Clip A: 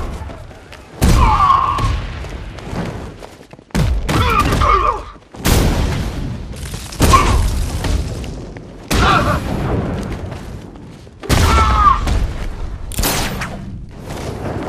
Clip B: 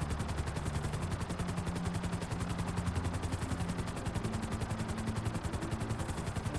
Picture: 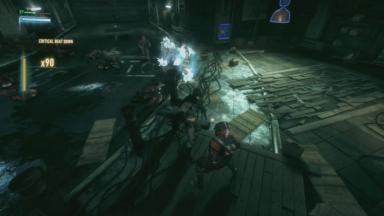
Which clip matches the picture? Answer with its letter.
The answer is A